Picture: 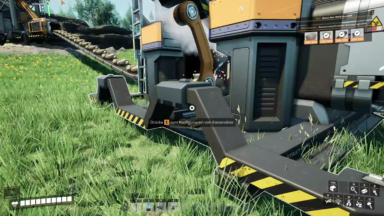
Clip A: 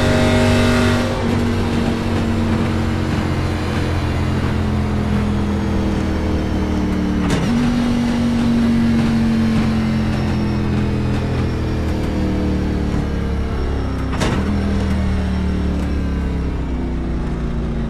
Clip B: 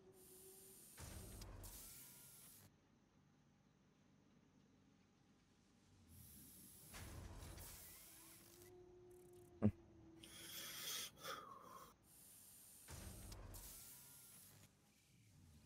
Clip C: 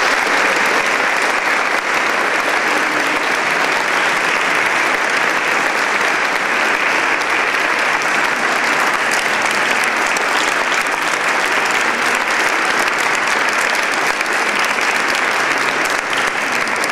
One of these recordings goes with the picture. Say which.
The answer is B